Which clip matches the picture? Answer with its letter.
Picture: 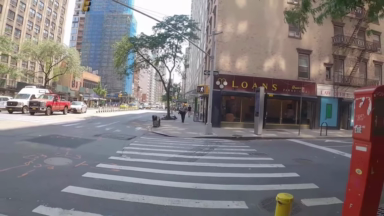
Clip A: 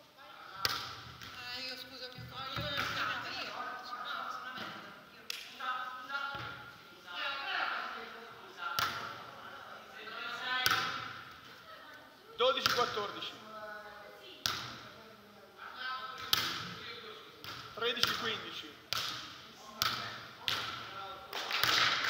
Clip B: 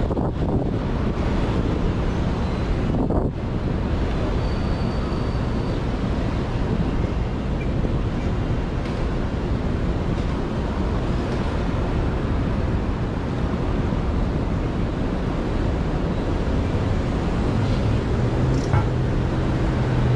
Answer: B